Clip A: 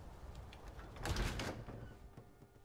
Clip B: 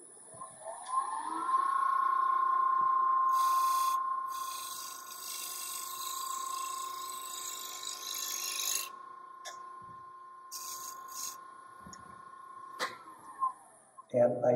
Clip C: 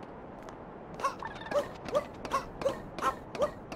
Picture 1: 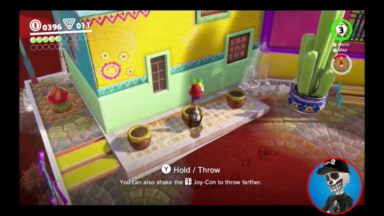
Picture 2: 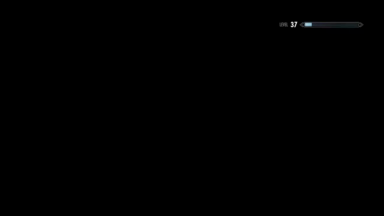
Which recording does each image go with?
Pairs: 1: C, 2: A